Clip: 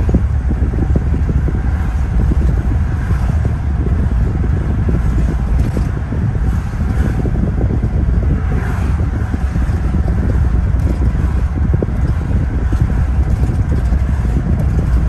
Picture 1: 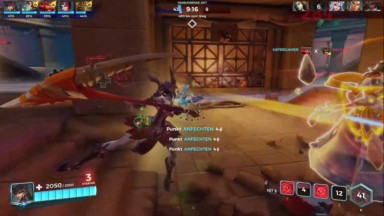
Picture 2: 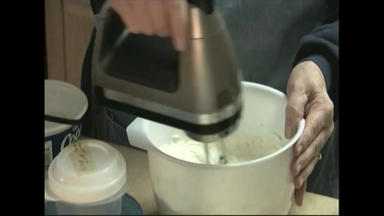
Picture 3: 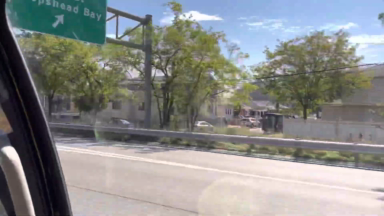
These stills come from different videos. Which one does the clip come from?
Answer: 3